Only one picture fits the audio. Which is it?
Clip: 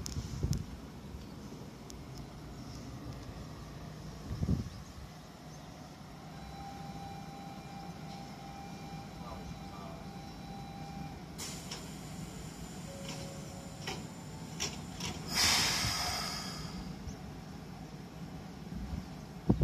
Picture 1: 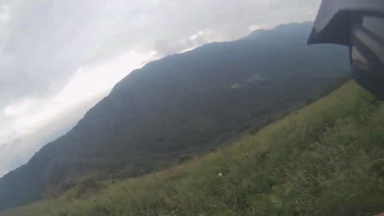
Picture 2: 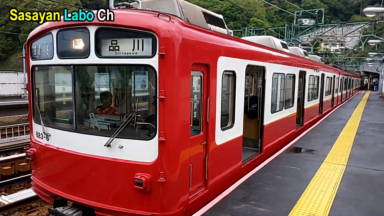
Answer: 2